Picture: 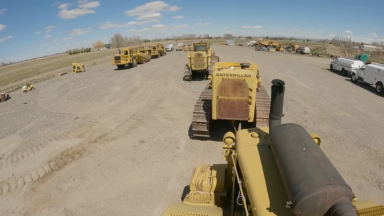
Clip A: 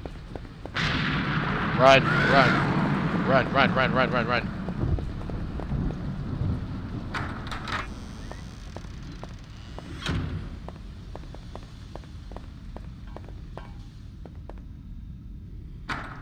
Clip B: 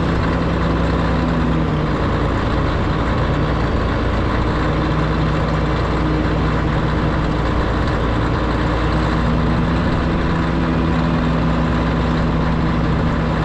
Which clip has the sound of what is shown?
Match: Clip B